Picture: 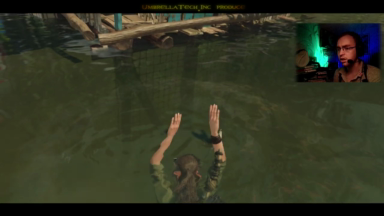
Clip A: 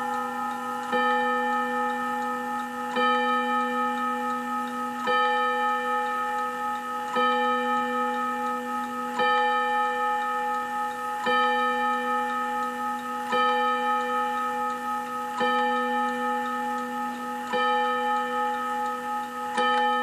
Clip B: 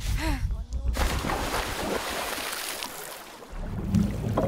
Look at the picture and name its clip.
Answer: B